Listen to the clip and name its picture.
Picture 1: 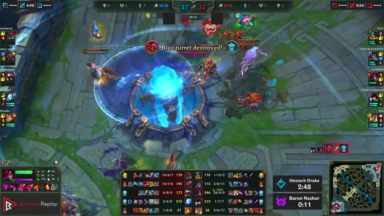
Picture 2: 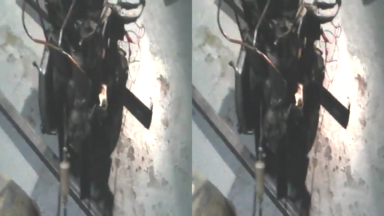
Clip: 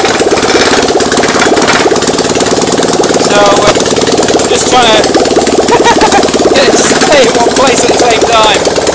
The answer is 2